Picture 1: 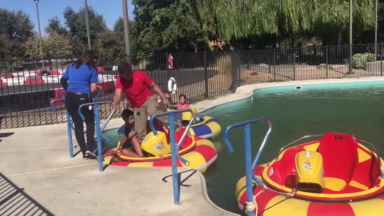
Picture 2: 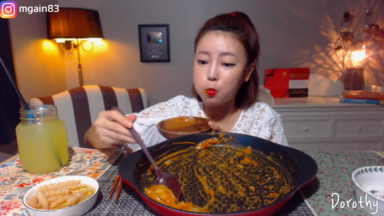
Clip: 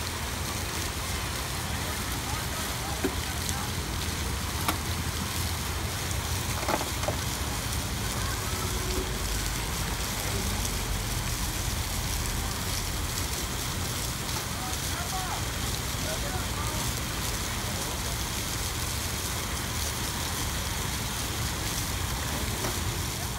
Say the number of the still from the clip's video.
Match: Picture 1